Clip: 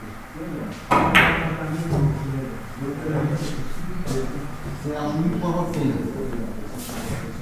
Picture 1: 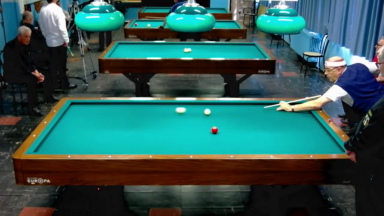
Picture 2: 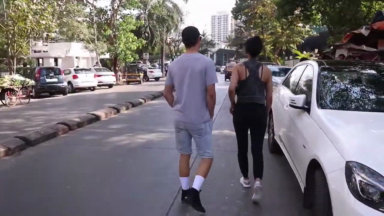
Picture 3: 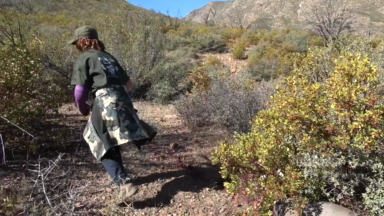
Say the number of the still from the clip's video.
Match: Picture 1